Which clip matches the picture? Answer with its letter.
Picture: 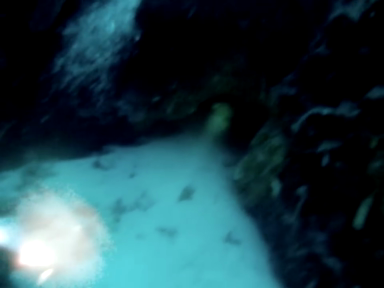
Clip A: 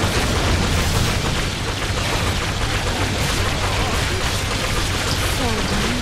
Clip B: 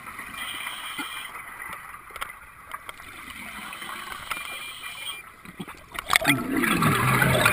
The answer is B